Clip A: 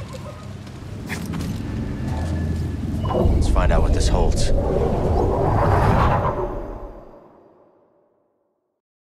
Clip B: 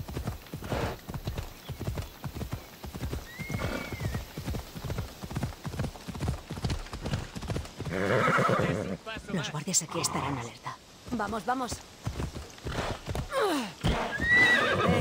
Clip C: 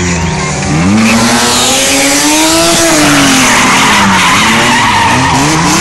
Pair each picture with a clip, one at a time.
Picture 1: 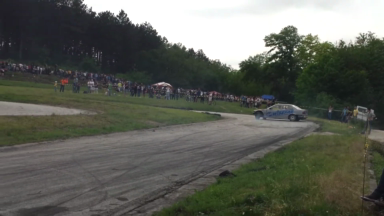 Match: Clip C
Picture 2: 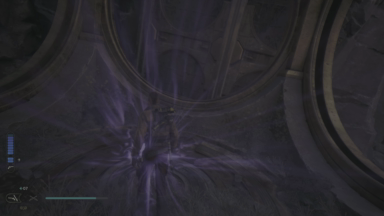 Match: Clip A